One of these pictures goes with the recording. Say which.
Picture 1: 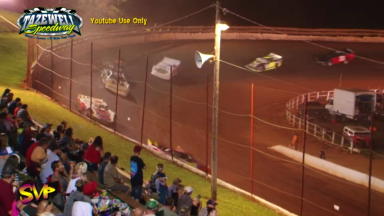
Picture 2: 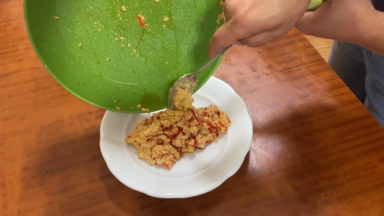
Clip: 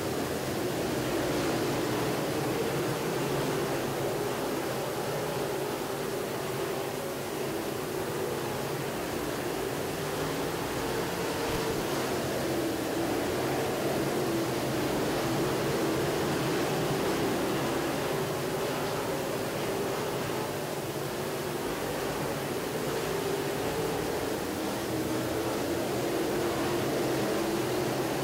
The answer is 1